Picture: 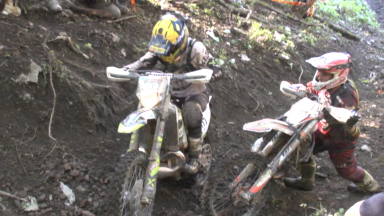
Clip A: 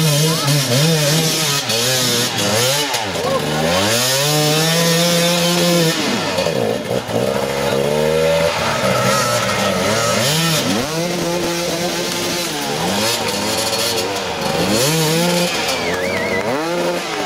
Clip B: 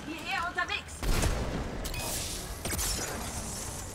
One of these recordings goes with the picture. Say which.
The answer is A